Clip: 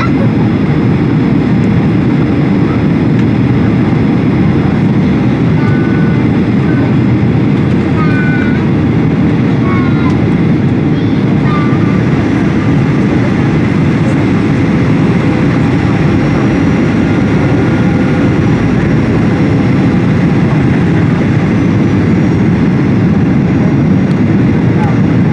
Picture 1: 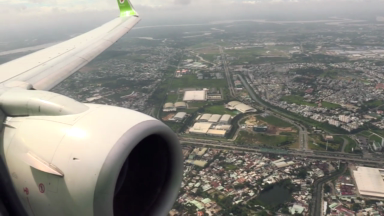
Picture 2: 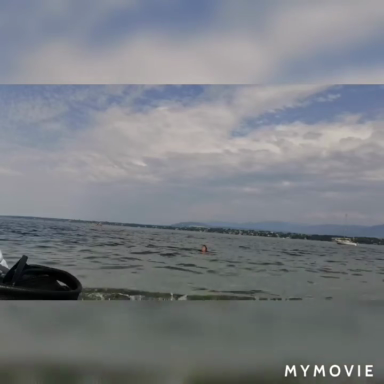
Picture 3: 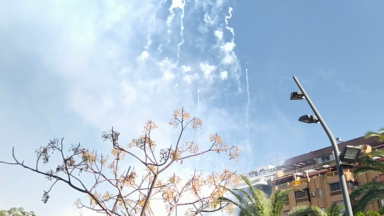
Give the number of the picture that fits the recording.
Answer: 1